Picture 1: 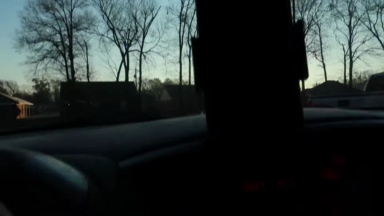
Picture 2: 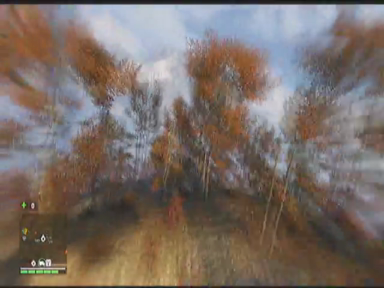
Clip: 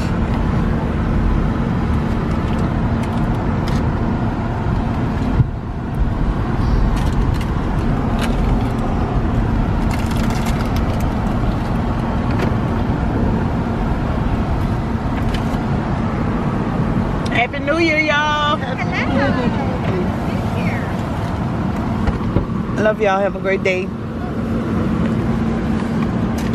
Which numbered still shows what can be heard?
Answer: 1